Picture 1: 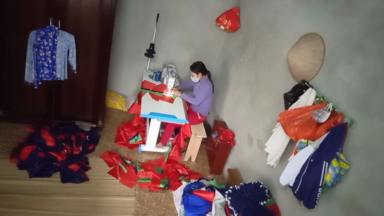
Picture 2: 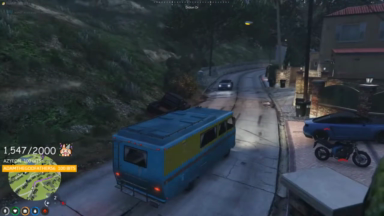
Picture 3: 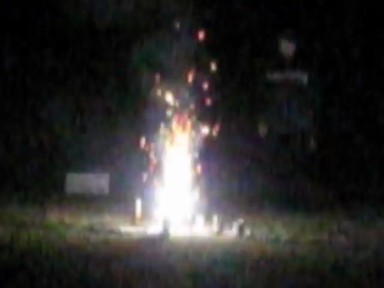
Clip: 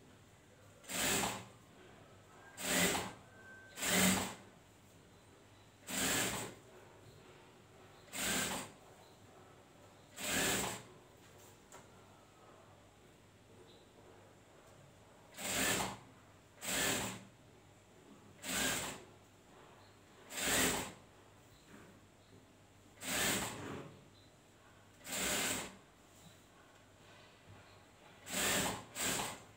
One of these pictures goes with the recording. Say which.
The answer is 1